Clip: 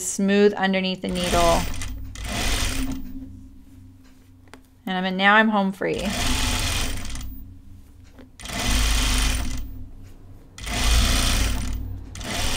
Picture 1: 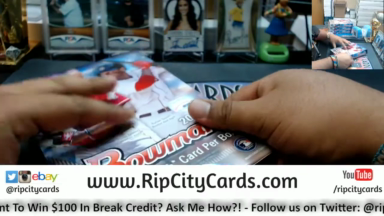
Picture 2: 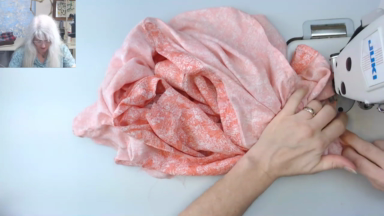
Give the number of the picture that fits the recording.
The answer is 2